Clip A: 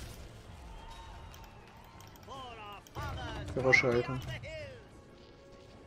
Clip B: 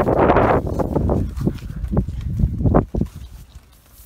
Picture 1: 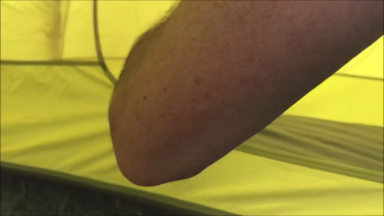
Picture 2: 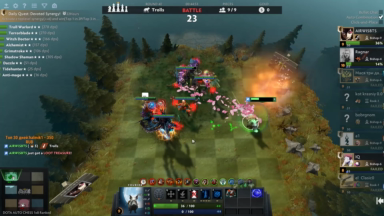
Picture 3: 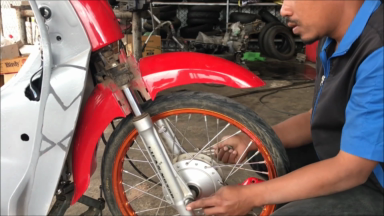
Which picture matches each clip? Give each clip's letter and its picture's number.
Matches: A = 2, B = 1